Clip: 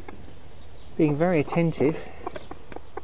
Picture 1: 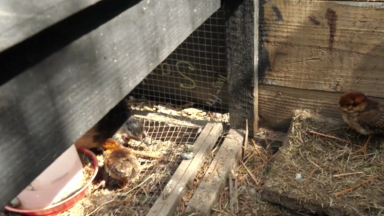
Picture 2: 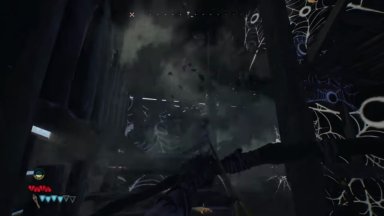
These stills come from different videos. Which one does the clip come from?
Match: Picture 1